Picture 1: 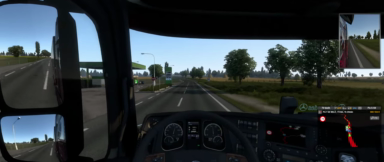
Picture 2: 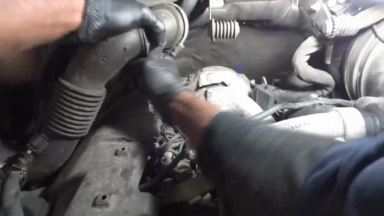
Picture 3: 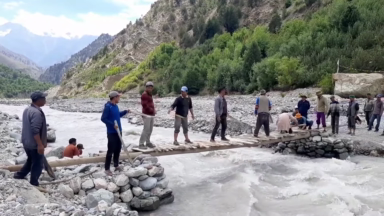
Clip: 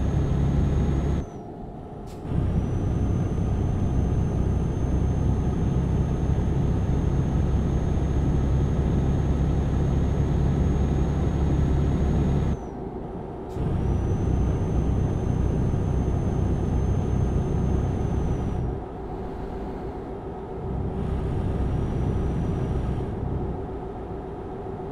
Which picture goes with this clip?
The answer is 1